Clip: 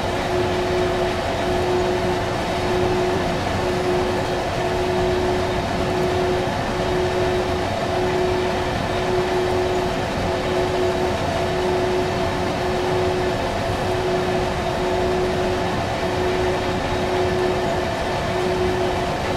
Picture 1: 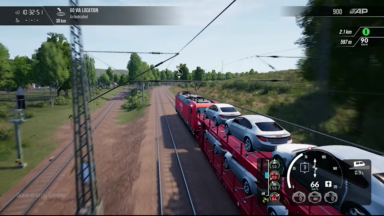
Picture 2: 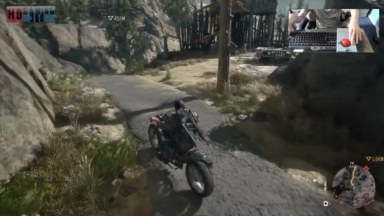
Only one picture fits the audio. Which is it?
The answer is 1